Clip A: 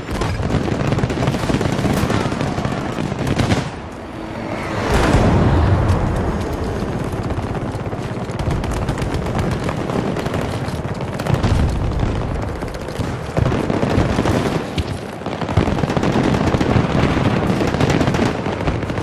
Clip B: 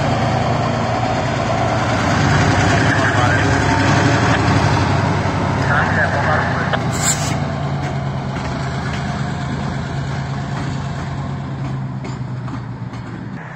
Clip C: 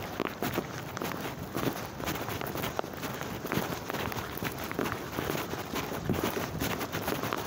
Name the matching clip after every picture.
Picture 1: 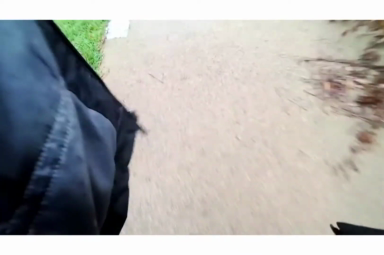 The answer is C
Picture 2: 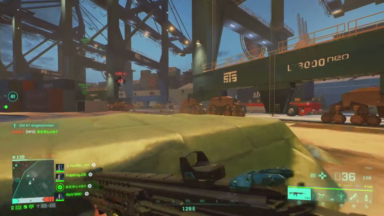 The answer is A